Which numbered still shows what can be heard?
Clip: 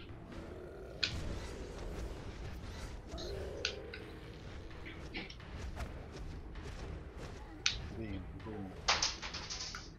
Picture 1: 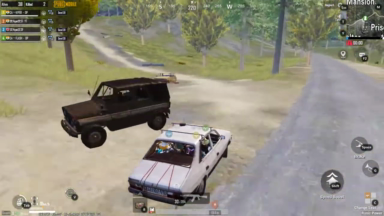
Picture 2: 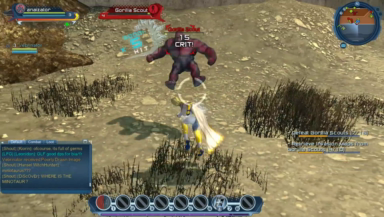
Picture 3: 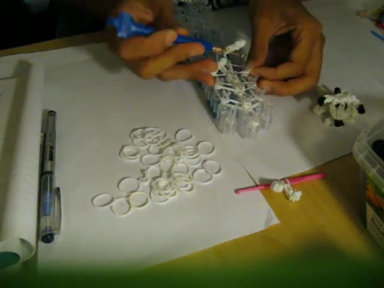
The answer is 2